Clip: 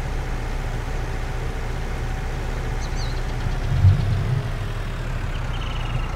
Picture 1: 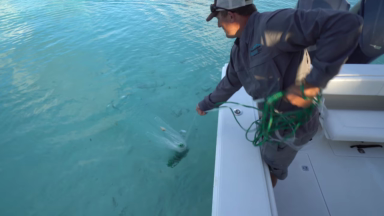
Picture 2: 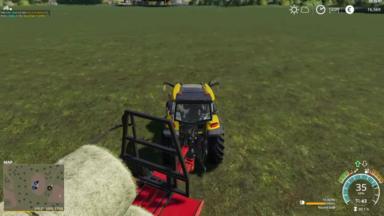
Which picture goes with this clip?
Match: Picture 2